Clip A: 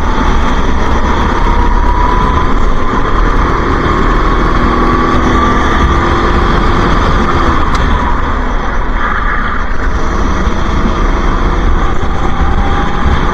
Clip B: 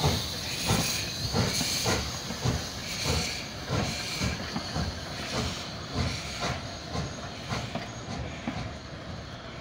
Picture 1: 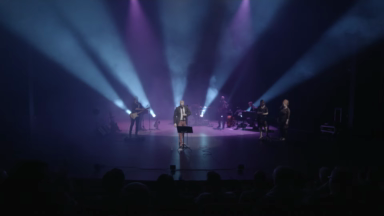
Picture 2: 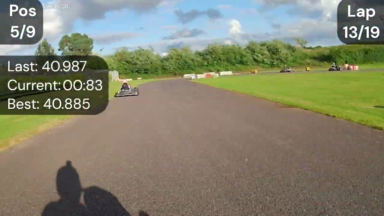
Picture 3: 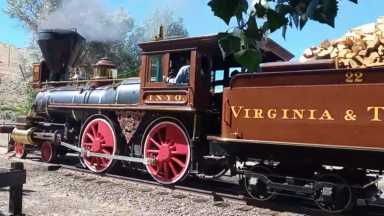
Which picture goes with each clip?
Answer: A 2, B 3